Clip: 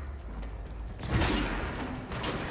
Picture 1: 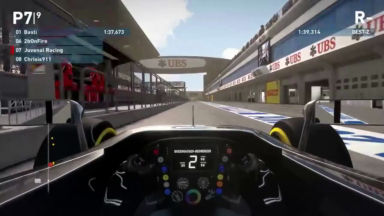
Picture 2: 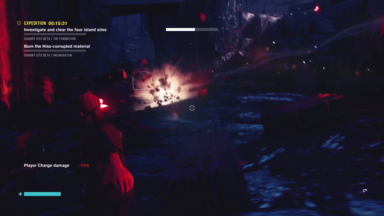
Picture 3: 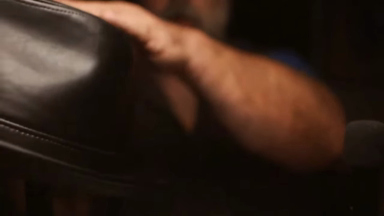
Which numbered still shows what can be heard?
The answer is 2